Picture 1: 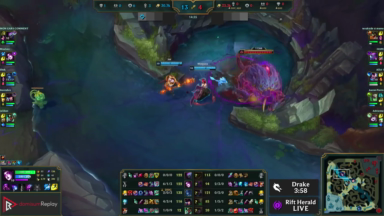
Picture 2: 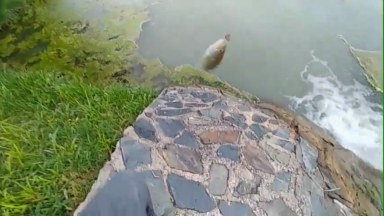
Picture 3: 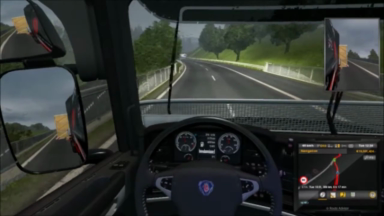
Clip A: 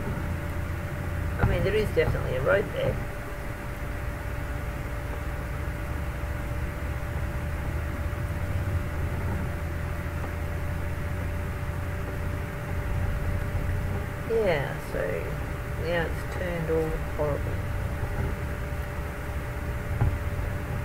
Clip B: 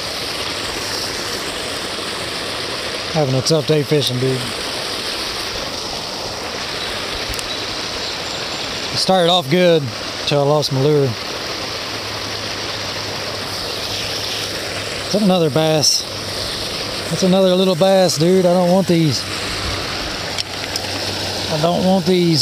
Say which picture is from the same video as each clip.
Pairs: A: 3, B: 2